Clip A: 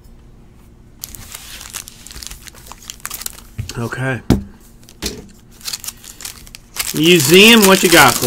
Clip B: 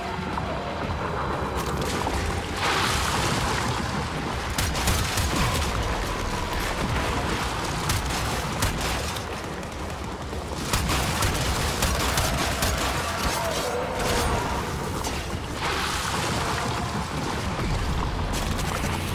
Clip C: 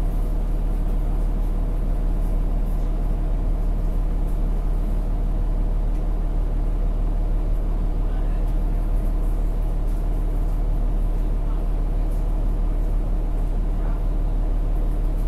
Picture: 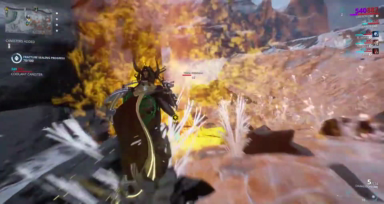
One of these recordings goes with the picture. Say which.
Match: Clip B